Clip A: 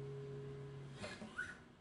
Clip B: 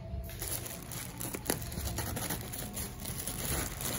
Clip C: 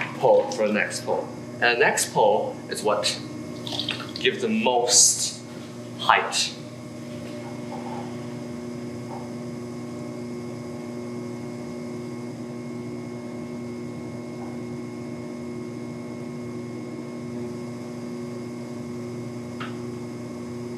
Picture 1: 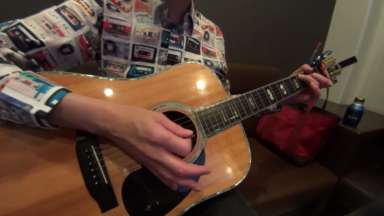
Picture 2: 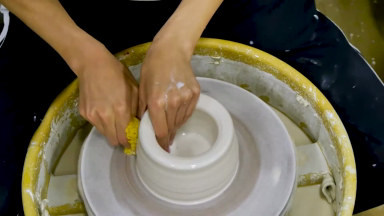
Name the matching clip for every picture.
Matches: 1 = A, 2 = C